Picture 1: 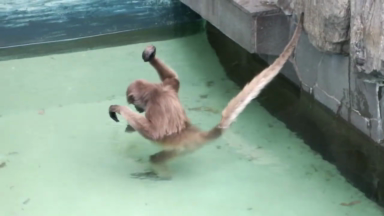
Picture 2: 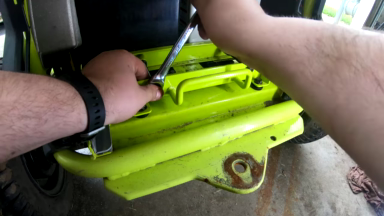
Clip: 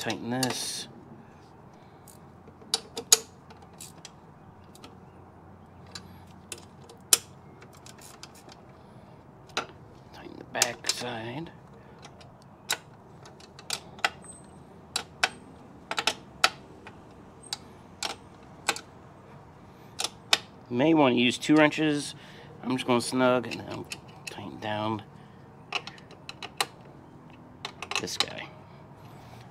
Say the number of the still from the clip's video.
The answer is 2